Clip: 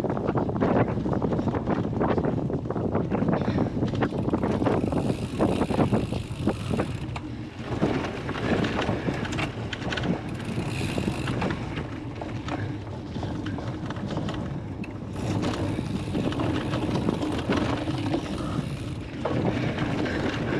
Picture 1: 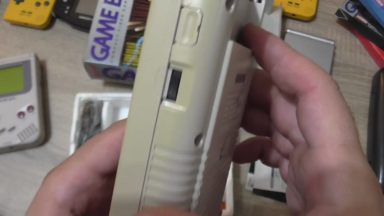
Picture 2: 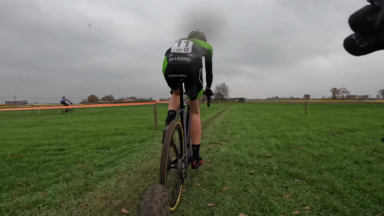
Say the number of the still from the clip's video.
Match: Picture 2